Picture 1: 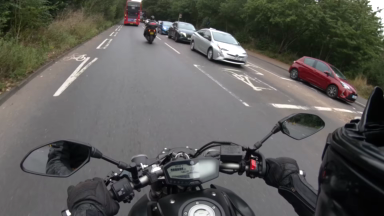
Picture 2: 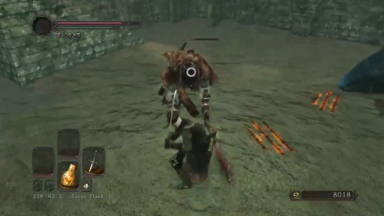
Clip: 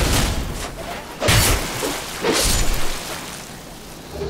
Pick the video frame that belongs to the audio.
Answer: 2